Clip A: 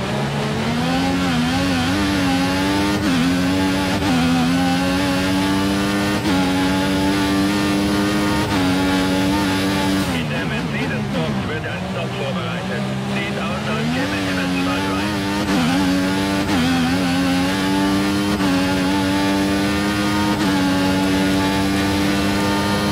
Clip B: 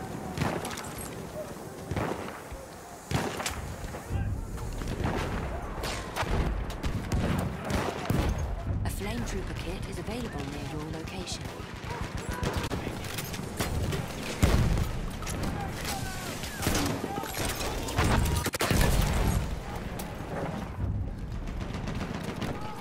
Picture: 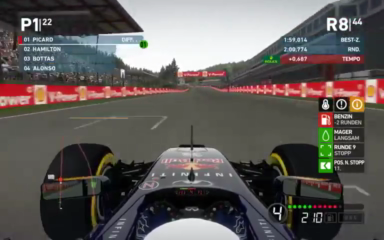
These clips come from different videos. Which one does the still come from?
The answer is A